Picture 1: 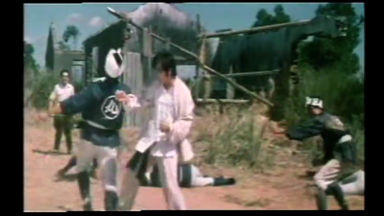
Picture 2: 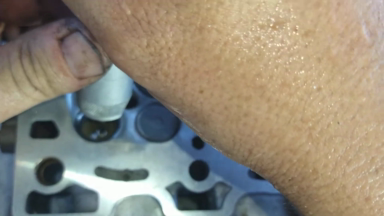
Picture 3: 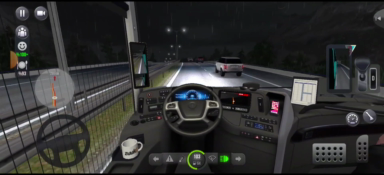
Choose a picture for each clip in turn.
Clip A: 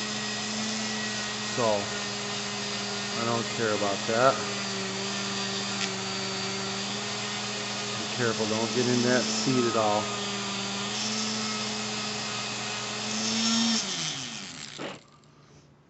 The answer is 2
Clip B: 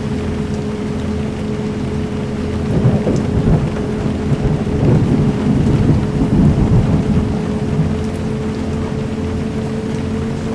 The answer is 3